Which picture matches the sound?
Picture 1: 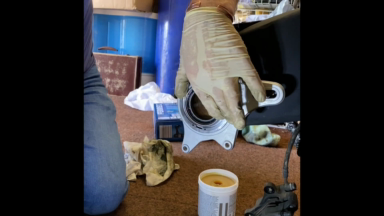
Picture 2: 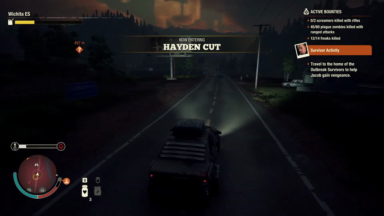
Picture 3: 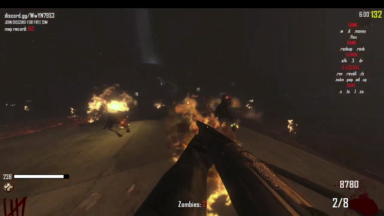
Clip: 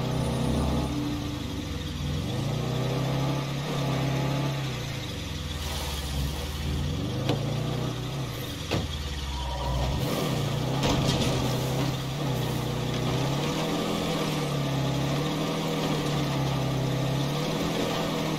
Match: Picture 2